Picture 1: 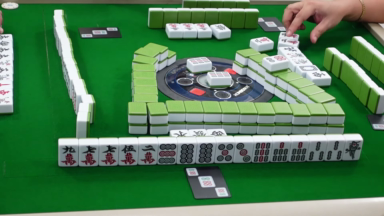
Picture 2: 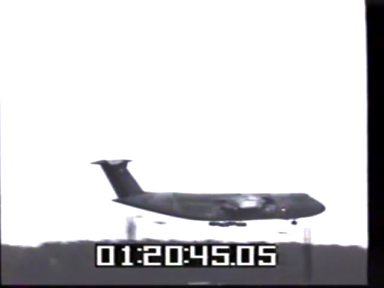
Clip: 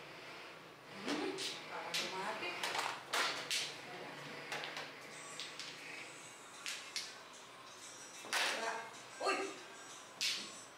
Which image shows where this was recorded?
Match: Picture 1